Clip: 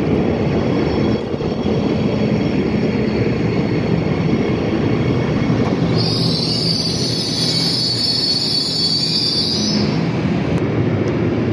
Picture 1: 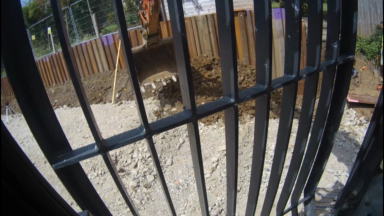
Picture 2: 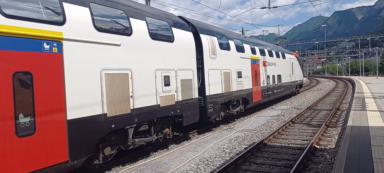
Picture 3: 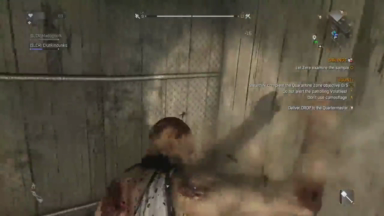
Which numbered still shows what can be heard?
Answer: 2